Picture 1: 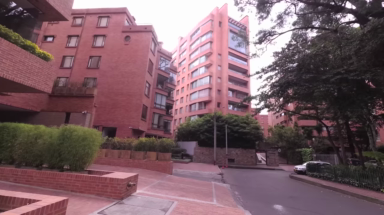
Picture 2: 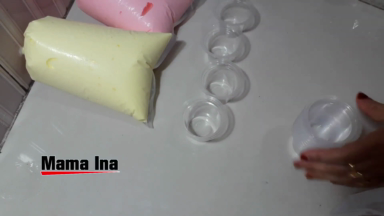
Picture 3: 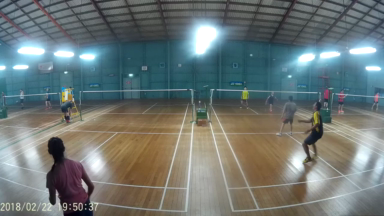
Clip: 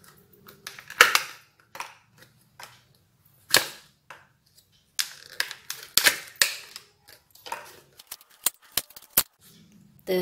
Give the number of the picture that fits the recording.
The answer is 2